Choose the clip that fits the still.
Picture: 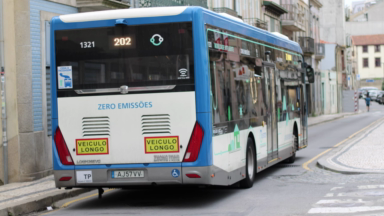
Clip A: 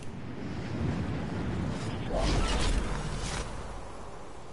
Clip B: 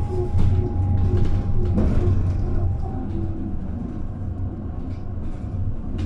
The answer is B